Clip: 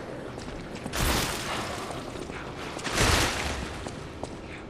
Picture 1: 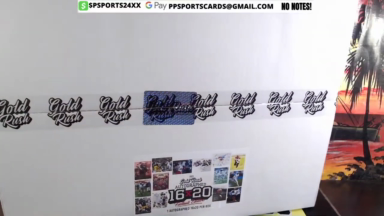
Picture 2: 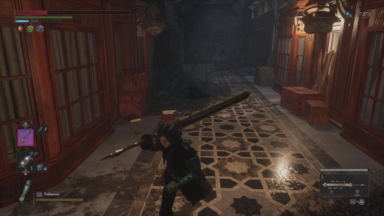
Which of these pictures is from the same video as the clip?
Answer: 2